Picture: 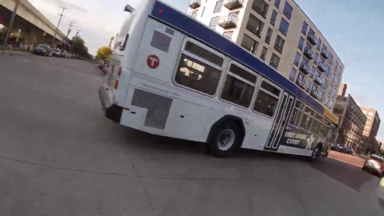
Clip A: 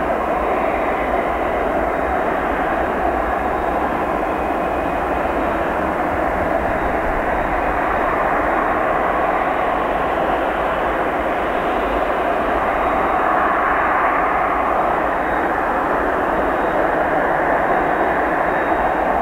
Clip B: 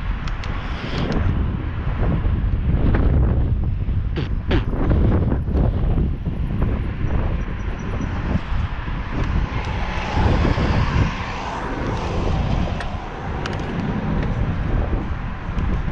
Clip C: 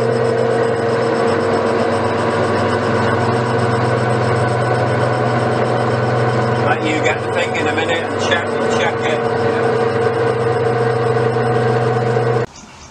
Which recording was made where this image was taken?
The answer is B